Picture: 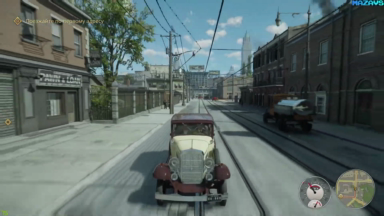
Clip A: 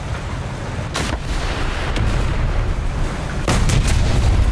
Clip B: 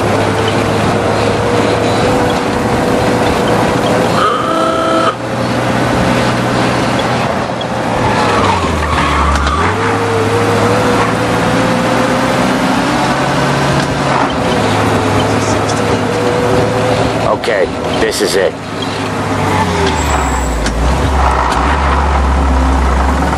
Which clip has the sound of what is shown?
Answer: B